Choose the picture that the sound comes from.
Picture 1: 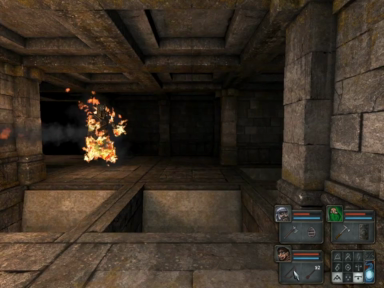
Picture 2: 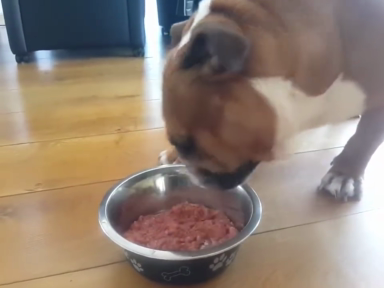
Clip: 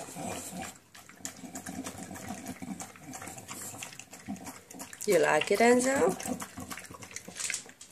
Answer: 2